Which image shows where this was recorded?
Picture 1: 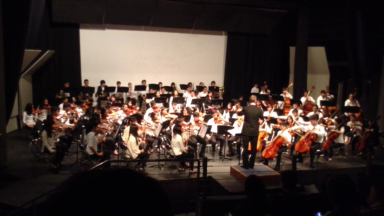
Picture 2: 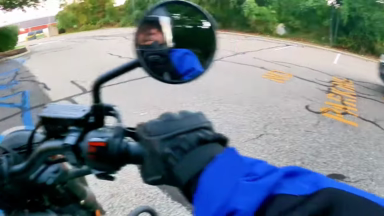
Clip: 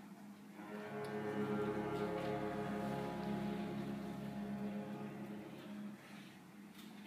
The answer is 1